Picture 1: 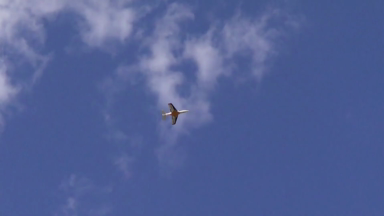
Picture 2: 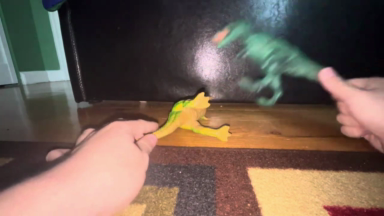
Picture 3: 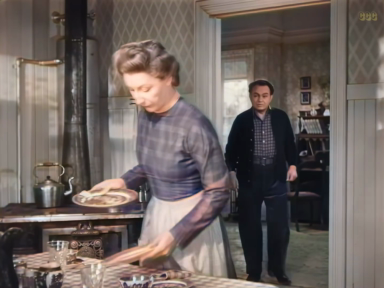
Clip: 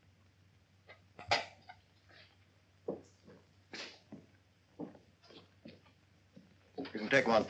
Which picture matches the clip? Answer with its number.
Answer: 3